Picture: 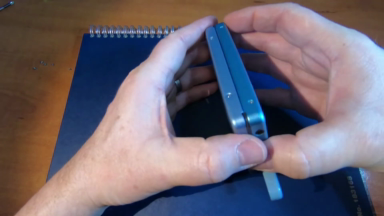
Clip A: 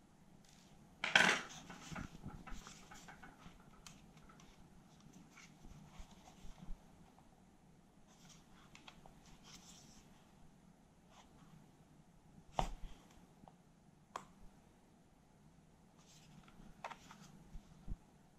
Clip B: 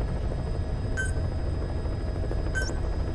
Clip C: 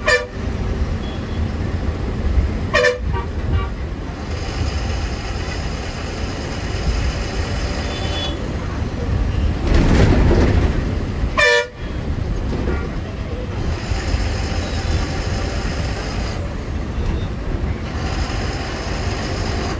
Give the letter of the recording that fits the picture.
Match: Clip A